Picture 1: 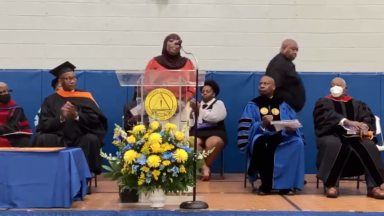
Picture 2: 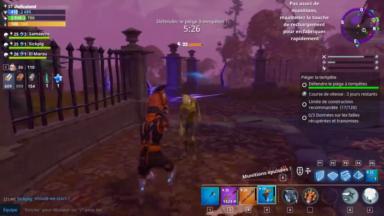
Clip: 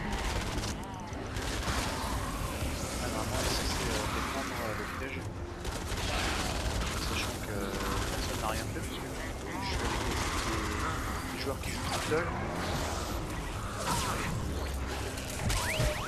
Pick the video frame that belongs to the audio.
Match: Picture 2